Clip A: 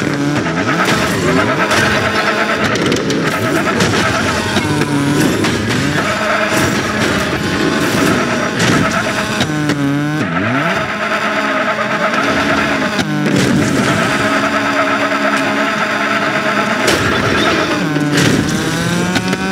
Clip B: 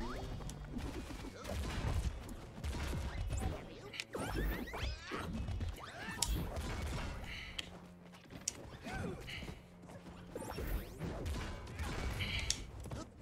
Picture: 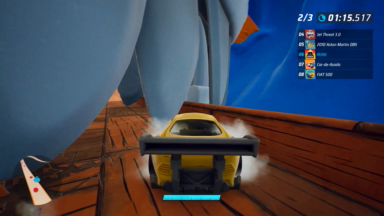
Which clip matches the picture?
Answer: A